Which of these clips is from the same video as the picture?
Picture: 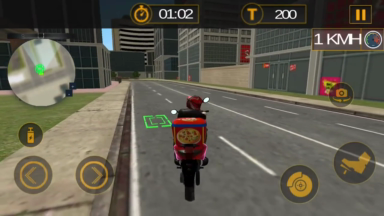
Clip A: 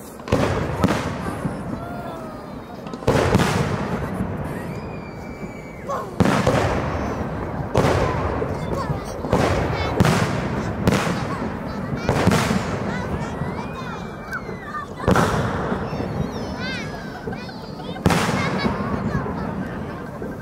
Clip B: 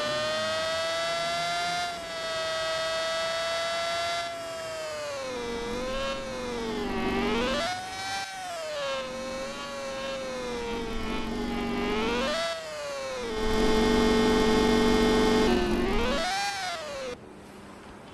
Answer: B